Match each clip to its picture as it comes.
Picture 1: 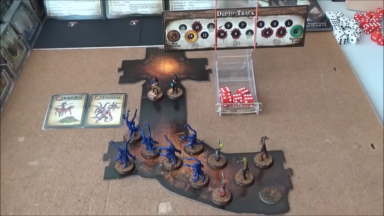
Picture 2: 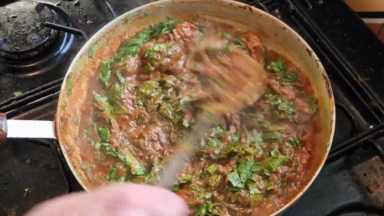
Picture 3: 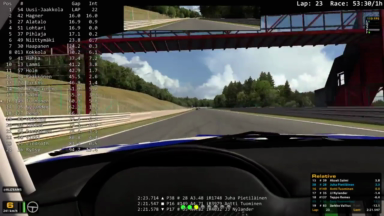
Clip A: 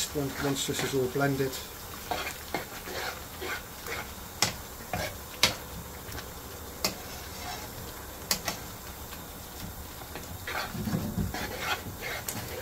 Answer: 2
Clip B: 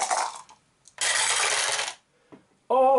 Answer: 1